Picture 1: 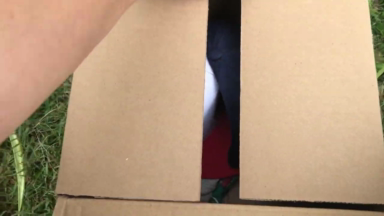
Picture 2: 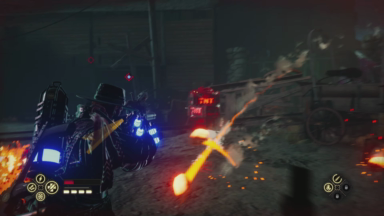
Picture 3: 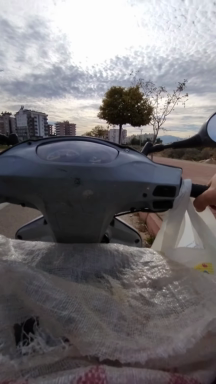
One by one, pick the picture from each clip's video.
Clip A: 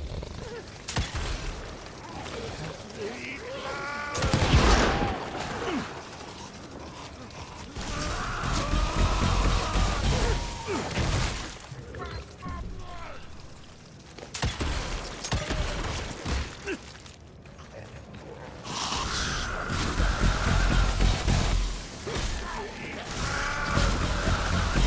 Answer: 2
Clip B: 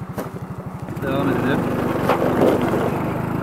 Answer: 3